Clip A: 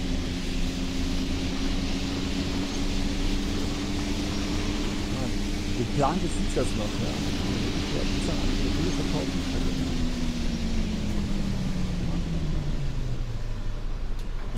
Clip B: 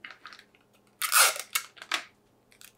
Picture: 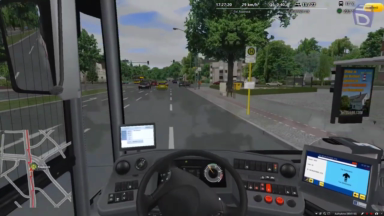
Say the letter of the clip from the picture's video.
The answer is A